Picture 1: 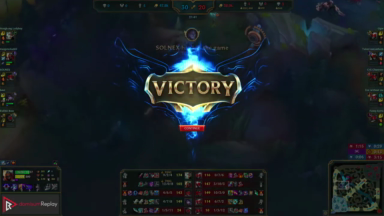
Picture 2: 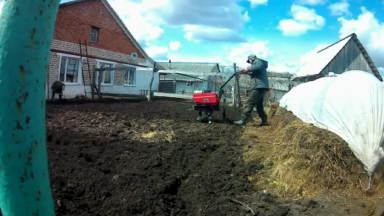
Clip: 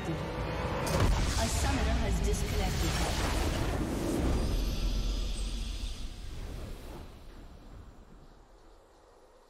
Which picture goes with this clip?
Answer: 1